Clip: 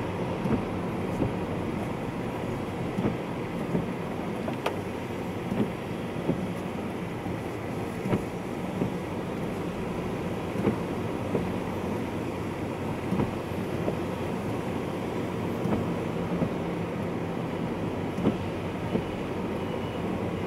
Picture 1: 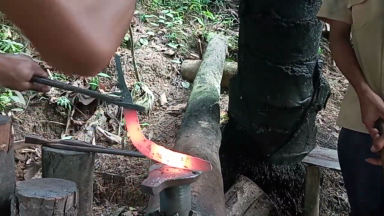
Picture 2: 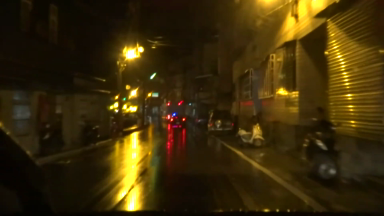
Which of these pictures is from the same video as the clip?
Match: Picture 2